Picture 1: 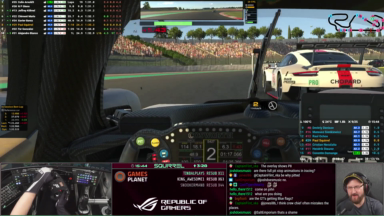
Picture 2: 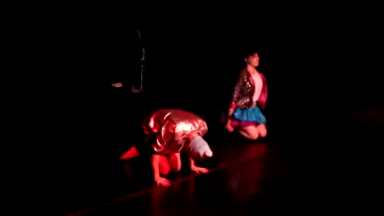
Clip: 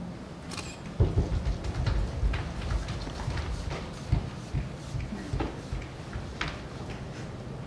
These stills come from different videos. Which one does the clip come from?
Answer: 2